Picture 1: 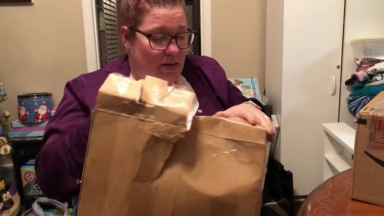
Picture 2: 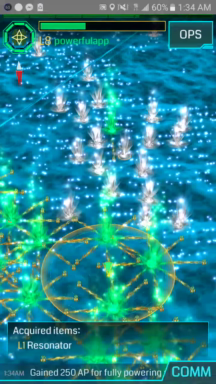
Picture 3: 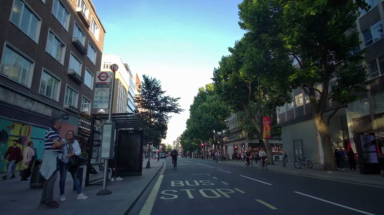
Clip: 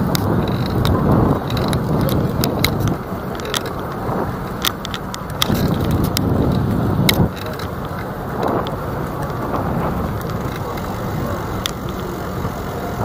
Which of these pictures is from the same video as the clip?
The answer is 3